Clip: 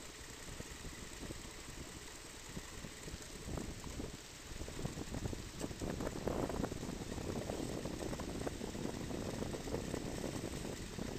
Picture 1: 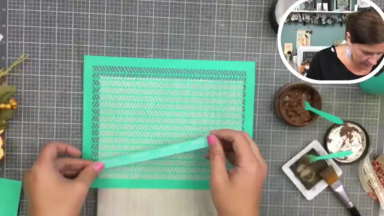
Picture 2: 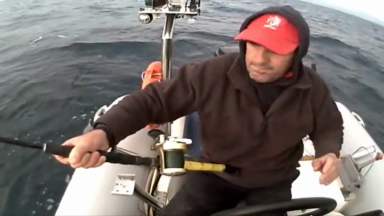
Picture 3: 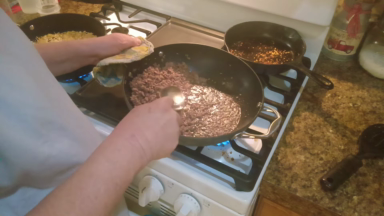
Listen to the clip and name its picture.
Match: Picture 2